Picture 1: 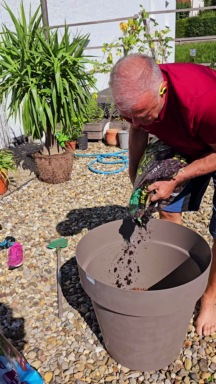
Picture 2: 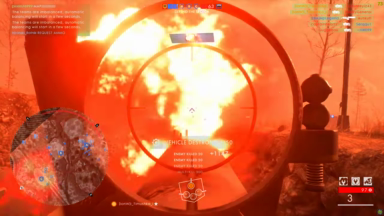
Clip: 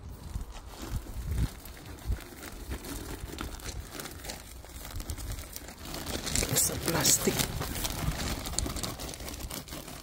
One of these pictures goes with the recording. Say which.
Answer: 1